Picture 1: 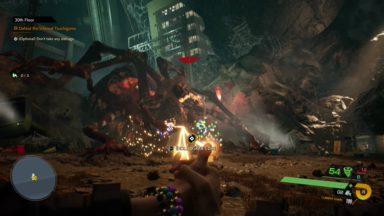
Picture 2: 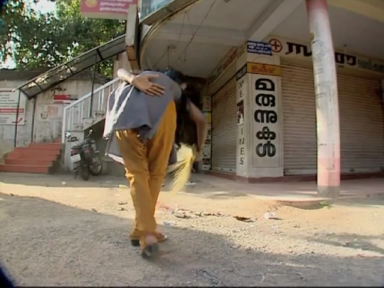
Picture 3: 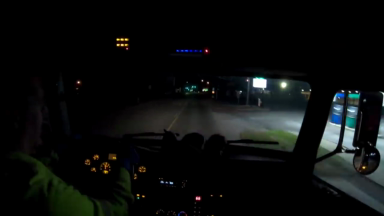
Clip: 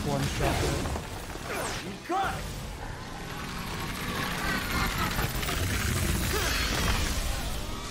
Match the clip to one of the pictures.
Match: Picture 1